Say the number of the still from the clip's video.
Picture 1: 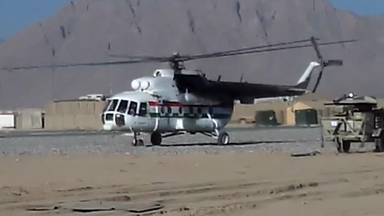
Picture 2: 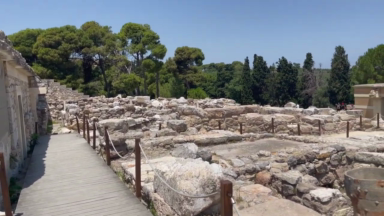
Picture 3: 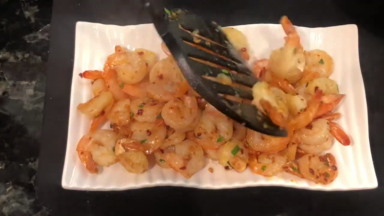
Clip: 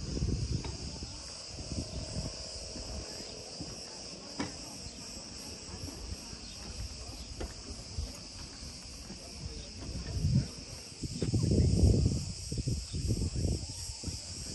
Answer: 2